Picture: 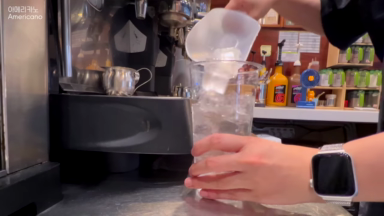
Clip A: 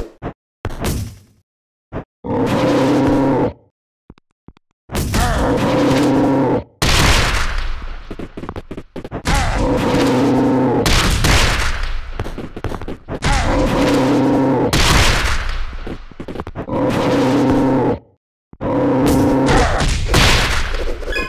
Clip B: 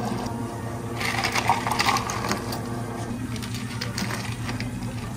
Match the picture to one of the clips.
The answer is B